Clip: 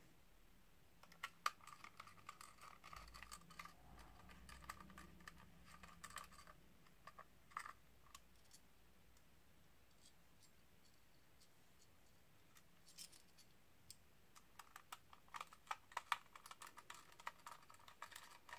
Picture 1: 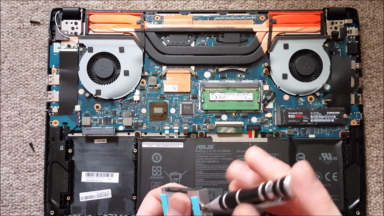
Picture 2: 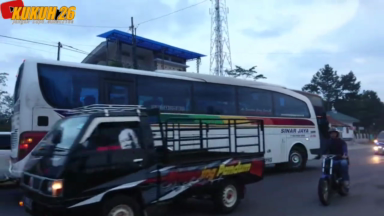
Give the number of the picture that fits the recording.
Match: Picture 1